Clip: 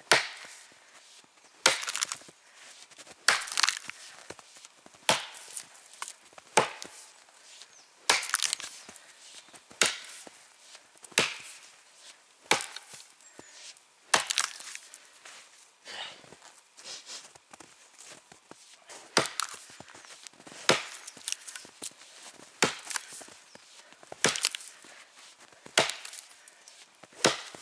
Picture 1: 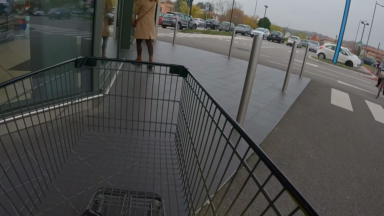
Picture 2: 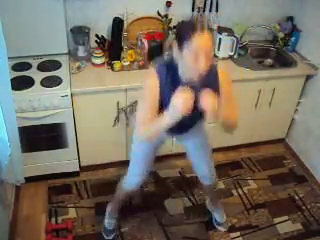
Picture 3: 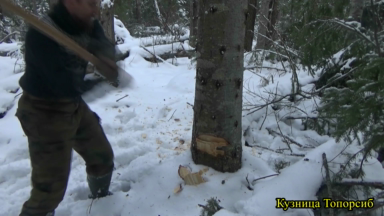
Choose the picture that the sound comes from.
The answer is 3